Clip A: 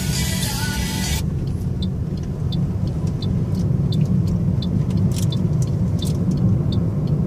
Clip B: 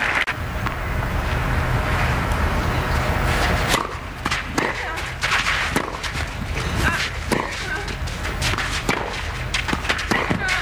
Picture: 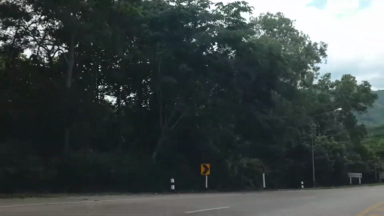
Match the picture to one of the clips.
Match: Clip A